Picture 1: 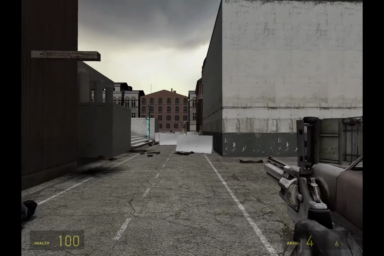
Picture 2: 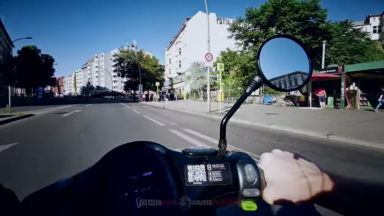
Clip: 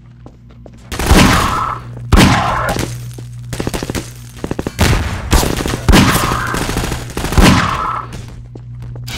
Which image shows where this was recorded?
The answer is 1